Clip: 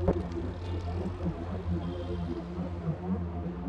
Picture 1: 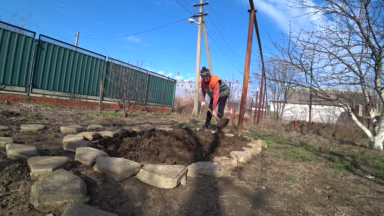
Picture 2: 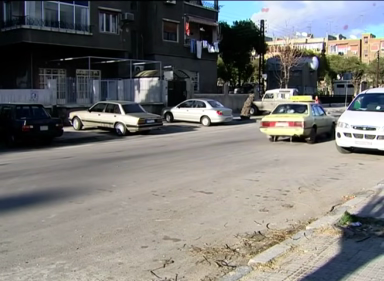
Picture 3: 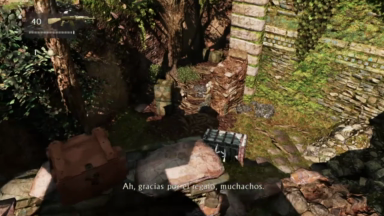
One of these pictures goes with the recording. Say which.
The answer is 2